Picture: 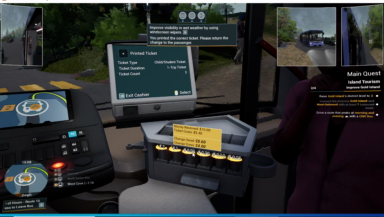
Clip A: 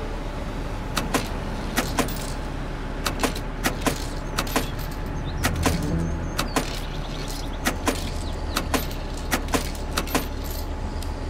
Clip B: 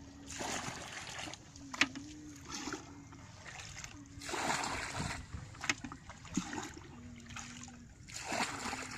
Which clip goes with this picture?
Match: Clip A